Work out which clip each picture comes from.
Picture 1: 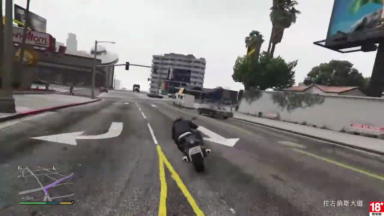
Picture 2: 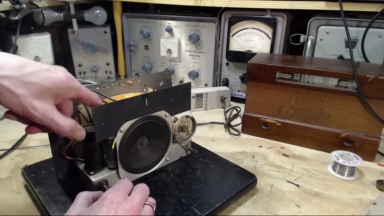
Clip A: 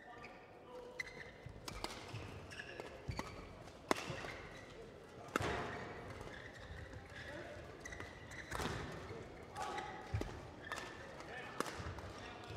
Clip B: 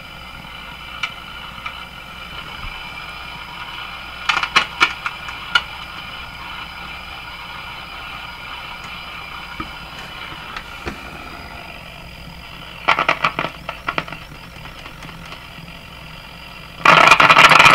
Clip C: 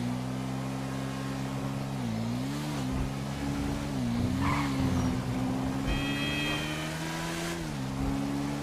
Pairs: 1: C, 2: B